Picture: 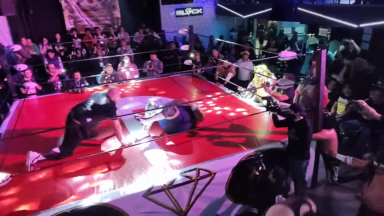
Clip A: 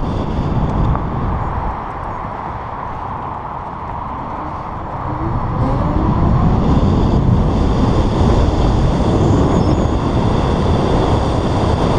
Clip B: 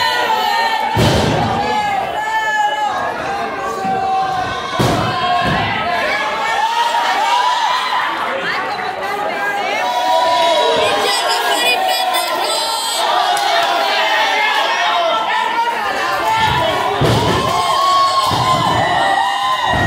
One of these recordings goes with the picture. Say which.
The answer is B